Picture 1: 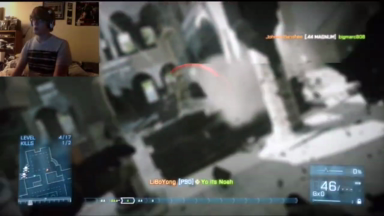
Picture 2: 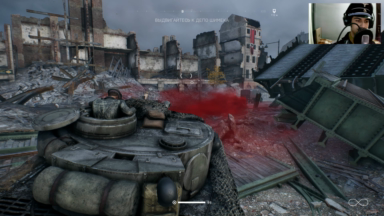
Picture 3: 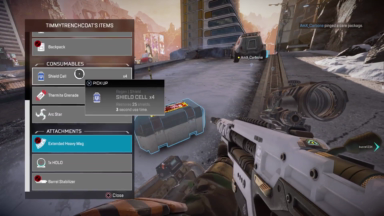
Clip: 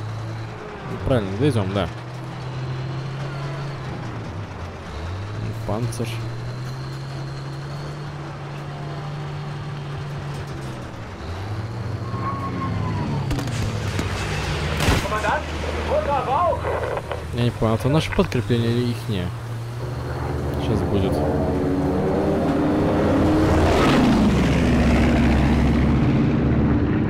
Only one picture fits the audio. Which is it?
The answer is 2